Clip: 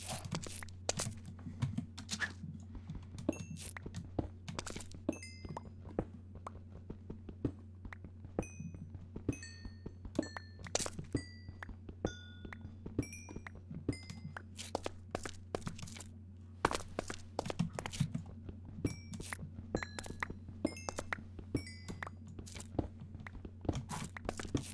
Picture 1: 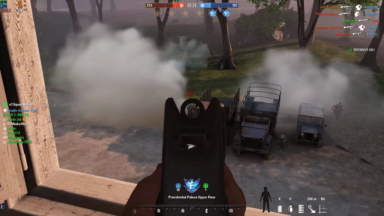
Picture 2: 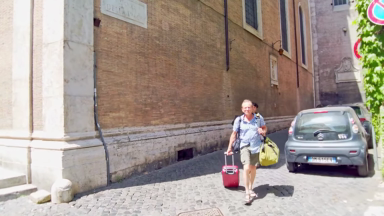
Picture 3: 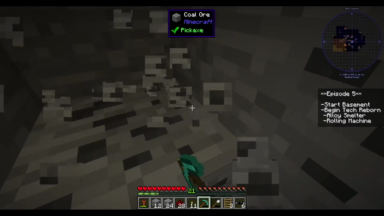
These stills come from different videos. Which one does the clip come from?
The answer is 3